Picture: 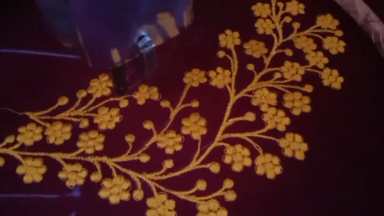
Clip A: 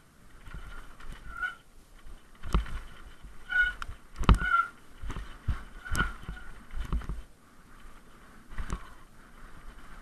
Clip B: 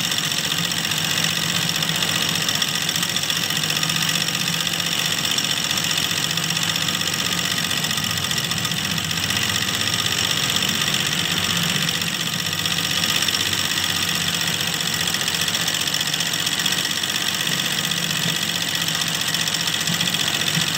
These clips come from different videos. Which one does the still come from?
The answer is B